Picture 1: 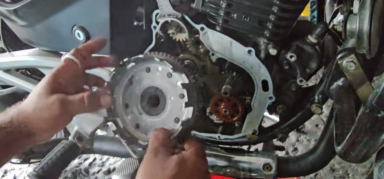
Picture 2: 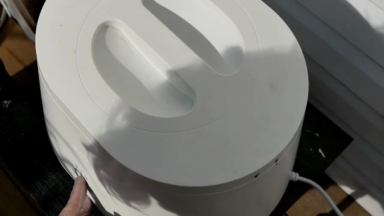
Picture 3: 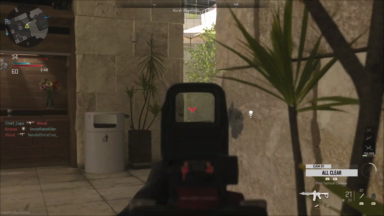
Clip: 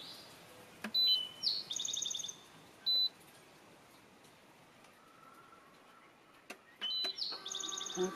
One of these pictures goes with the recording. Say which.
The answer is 2